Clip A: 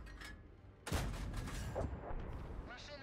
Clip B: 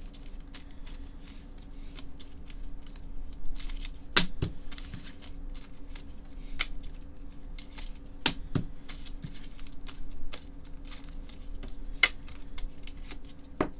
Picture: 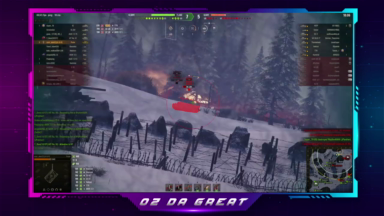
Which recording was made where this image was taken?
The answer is A